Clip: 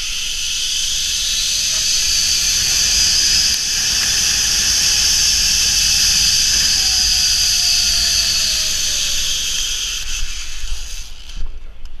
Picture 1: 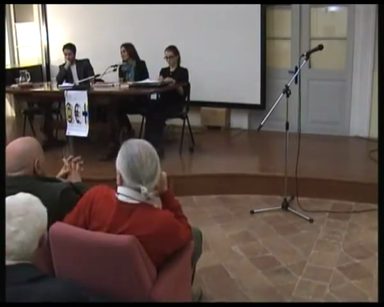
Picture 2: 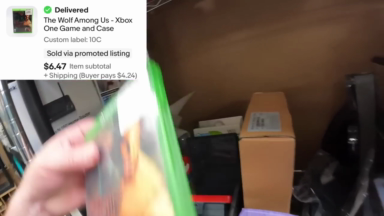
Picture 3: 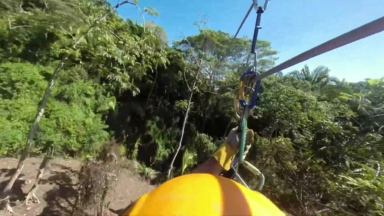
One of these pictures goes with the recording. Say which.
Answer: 3